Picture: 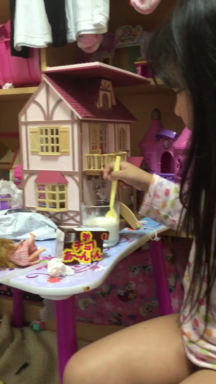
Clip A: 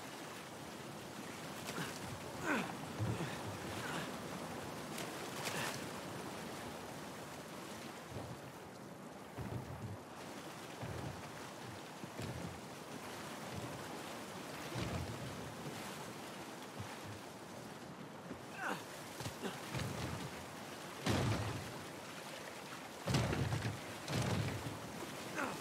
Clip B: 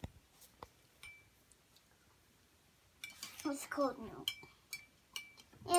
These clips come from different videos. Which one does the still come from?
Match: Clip B